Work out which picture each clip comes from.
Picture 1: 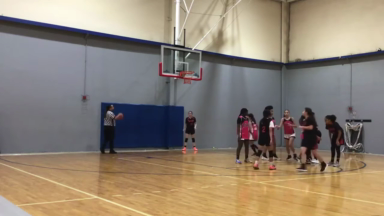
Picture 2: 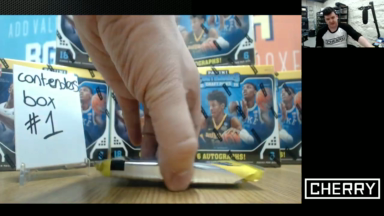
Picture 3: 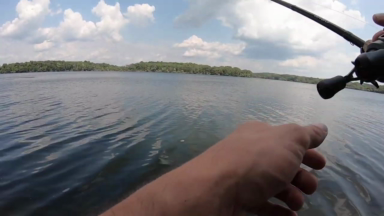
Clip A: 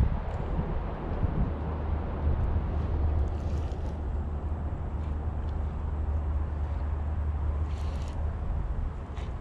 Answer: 3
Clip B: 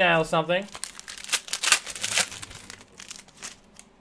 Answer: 2